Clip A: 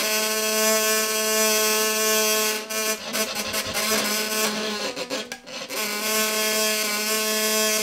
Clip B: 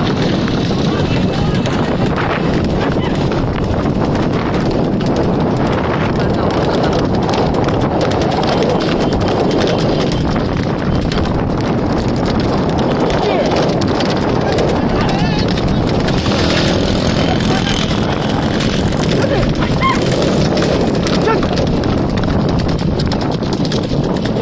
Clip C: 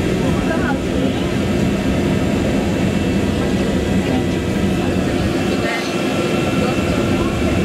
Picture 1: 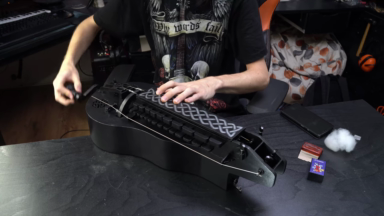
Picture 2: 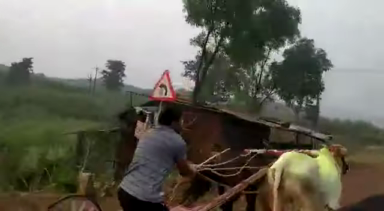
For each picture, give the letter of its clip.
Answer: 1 A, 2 B